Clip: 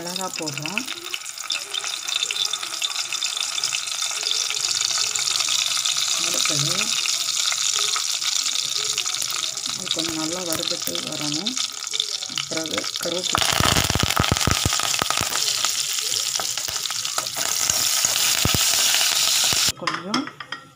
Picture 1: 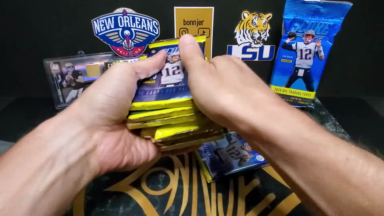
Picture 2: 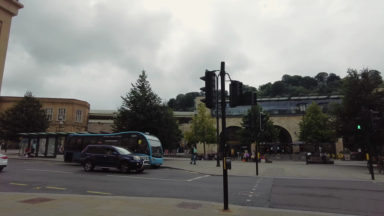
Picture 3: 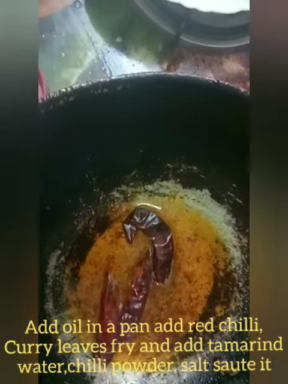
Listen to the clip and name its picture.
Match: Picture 3